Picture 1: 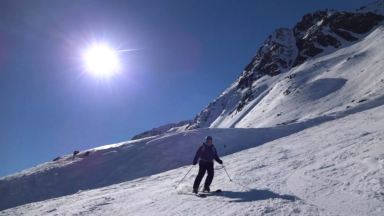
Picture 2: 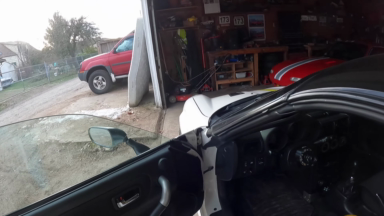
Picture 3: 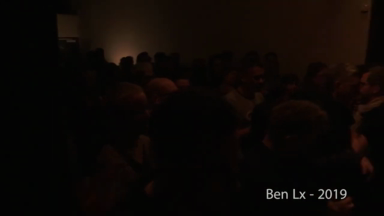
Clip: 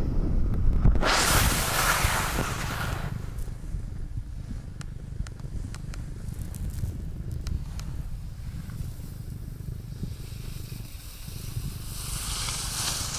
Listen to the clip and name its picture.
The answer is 1